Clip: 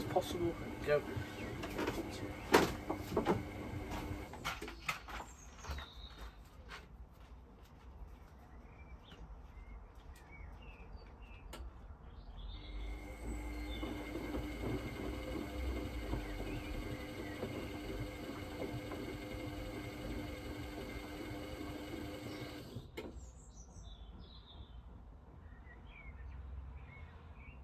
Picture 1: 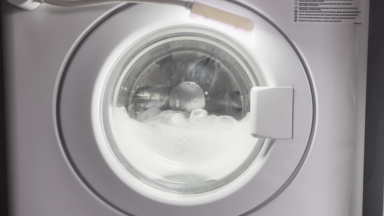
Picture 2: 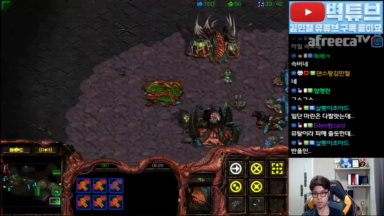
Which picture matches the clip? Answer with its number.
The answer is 1